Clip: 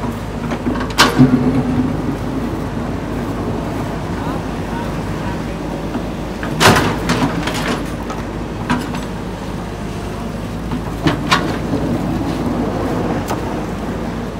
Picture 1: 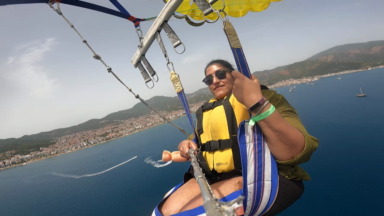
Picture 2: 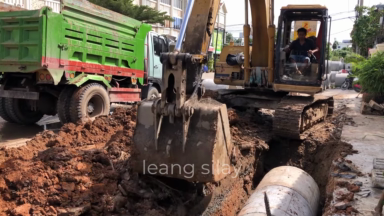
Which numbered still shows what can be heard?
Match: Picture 2